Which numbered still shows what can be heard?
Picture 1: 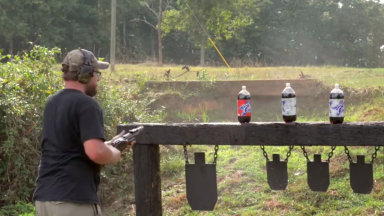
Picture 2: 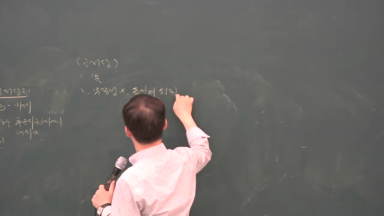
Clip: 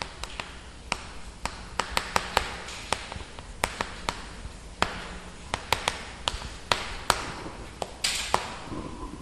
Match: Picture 2